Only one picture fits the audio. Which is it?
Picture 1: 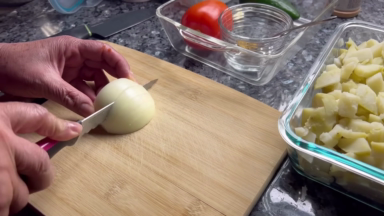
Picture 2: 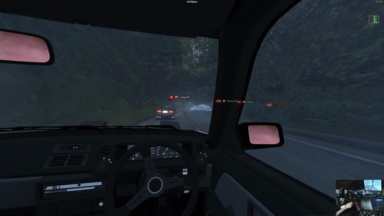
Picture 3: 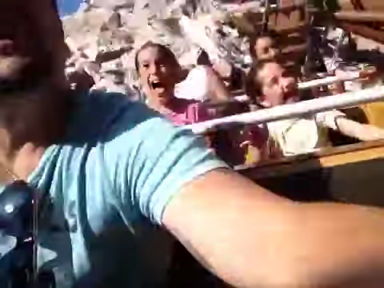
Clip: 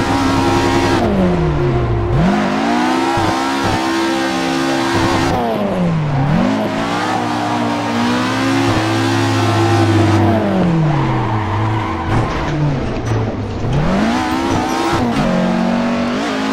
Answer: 2